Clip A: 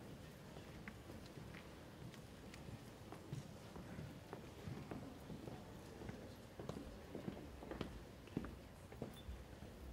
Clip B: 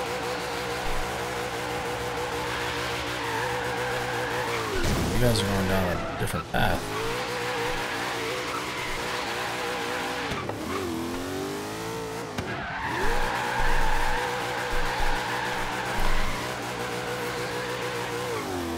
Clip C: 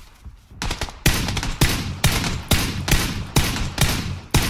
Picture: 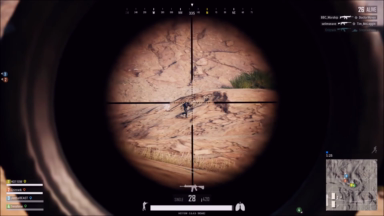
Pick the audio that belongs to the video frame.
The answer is C